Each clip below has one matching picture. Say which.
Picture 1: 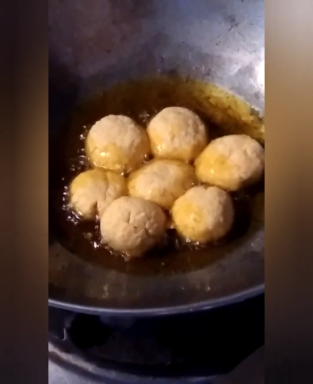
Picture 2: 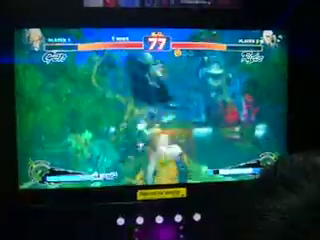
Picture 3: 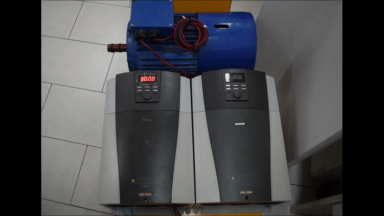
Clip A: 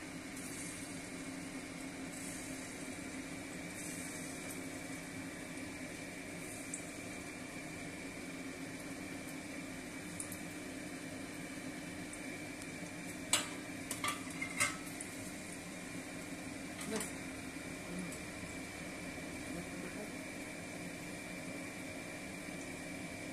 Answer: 1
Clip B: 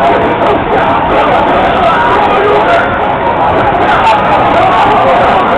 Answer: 2